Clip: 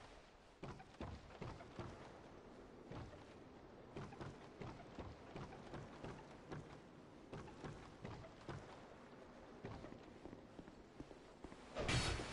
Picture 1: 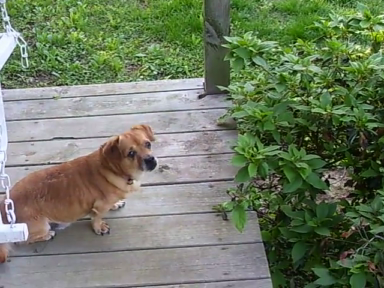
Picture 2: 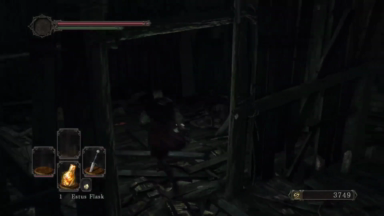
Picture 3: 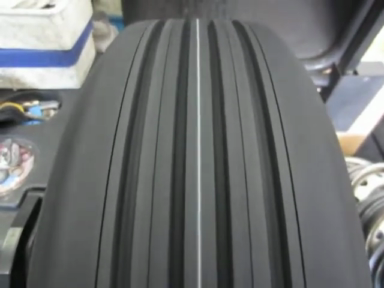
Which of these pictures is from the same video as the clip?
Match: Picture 2